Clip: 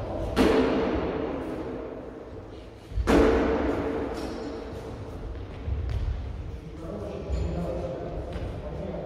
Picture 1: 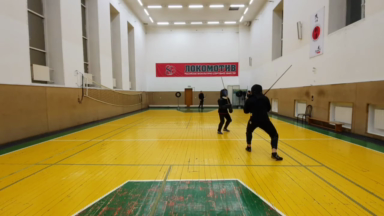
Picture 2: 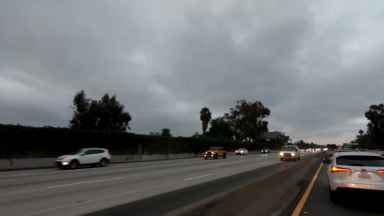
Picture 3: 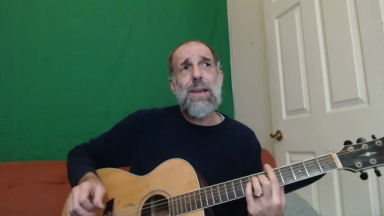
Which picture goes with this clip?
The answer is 1